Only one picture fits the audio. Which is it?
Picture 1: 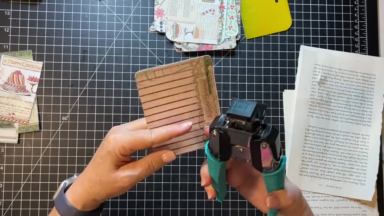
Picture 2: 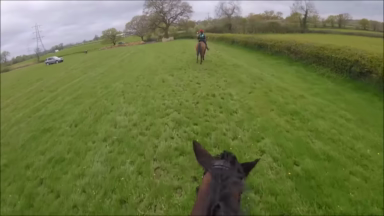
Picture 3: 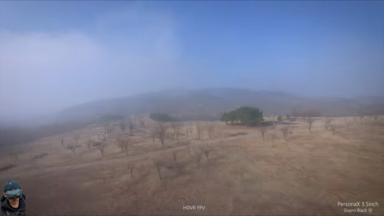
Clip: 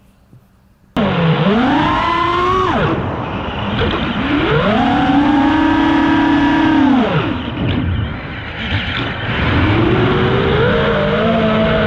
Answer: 3